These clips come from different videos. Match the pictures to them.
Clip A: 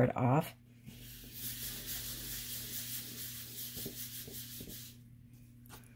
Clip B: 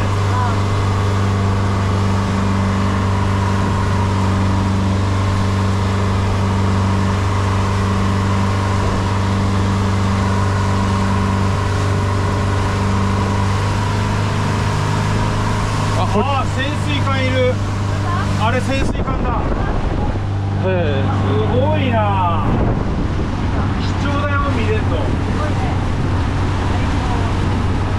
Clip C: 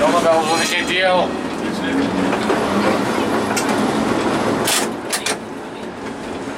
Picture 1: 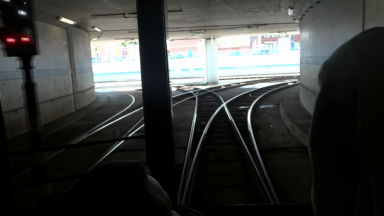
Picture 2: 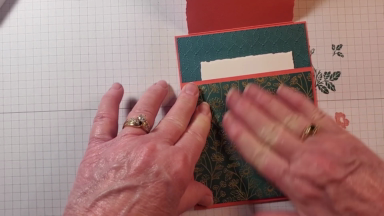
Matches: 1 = C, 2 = A